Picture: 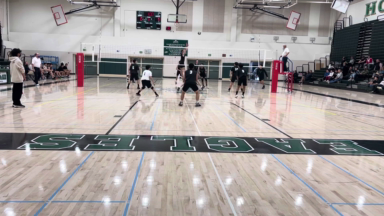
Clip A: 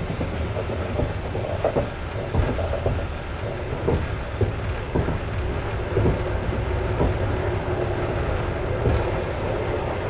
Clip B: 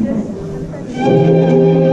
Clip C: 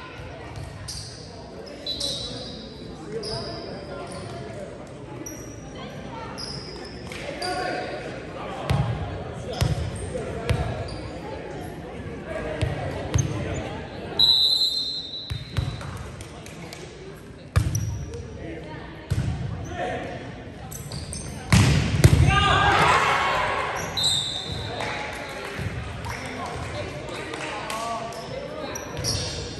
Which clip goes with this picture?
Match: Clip C